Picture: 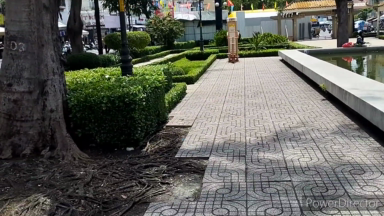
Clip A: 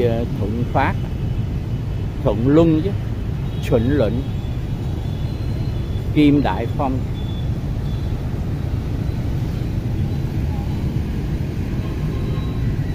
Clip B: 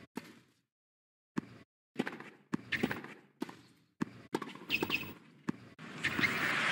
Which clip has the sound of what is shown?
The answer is A